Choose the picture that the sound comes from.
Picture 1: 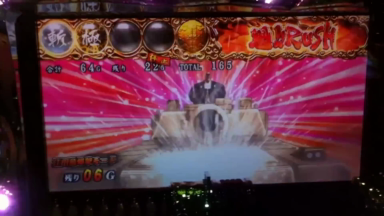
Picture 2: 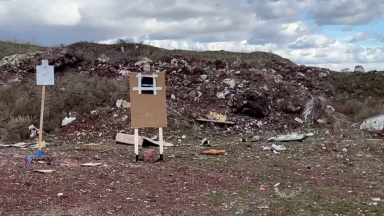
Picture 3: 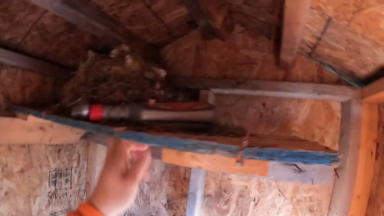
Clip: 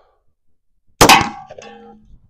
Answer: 2